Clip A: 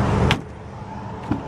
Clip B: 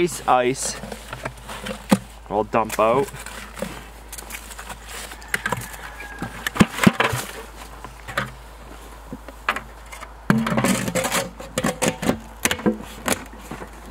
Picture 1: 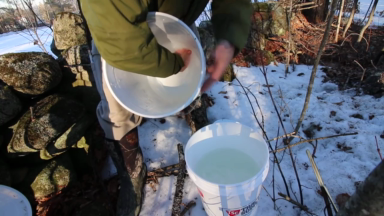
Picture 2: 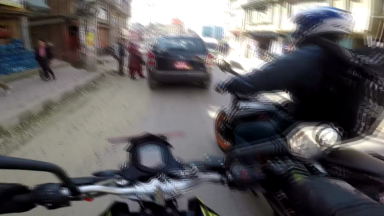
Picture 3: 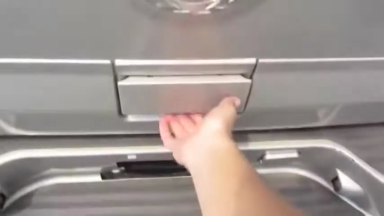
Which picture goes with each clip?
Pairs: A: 3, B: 1